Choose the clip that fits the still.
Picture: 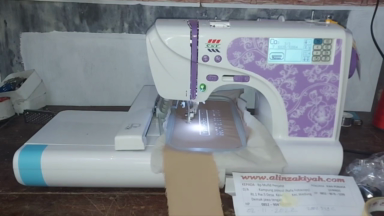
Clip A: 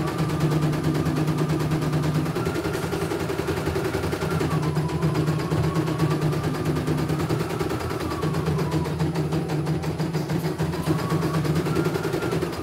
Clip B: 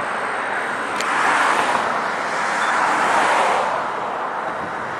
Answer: A